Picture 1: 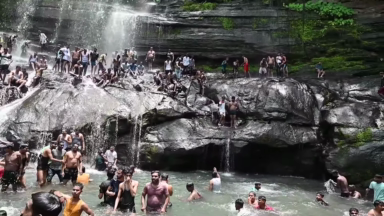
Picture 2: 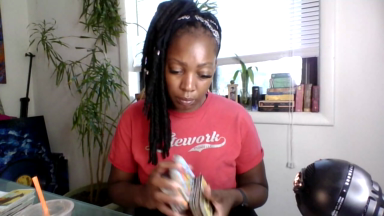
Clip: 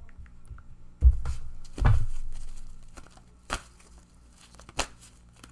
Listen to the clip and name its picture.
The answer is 2